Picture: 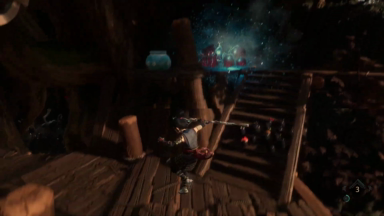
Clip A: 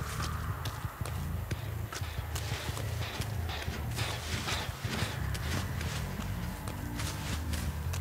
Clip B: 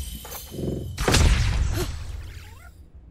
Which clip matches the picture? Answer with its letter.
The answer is B